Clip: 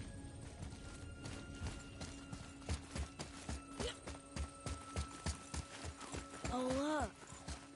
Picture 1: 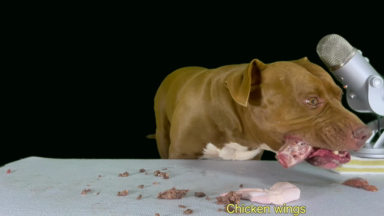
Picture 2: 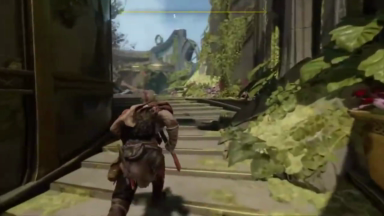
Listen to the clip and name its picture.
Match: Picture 2